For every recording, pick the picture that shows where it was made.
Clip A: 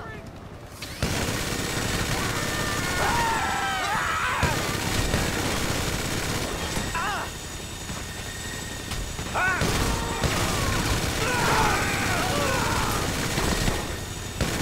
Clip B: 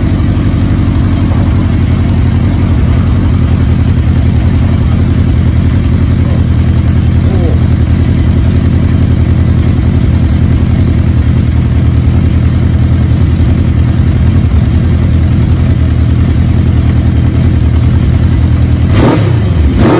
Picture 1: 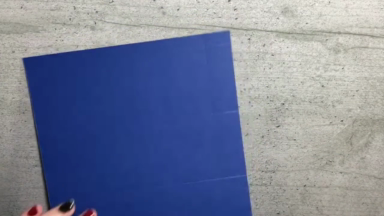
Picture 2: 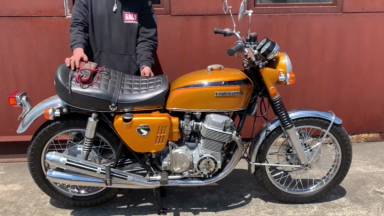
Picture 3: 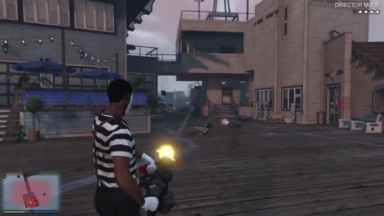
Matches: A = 3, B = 2